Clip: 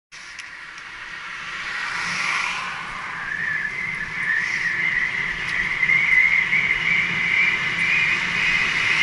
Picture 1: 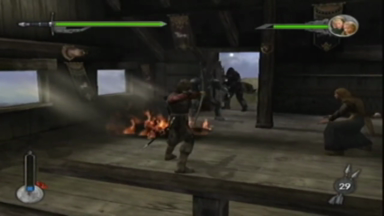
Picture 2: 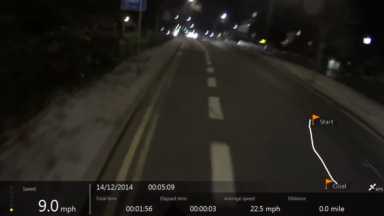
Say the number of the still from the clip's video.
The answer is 2